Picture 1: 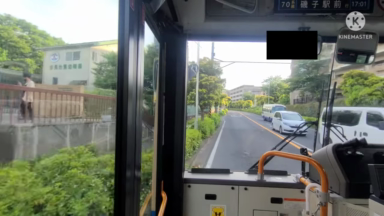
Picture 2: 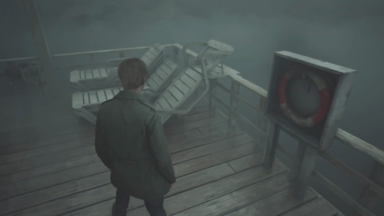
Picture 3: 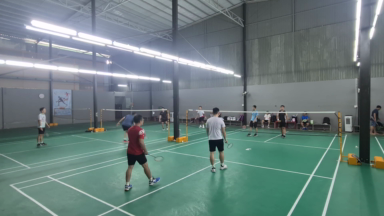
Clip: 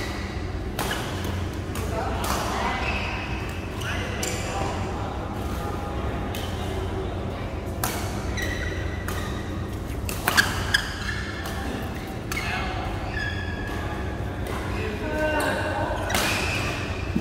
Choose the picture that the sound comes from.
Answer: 3